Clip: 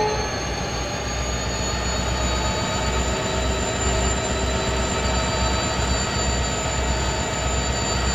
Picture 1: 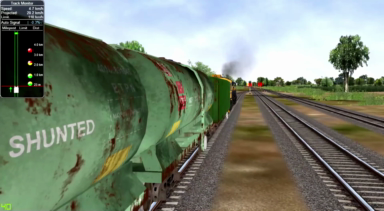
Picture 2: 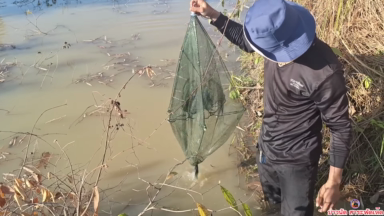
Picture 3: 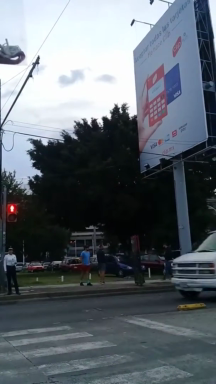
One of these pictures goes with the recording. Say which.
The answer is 1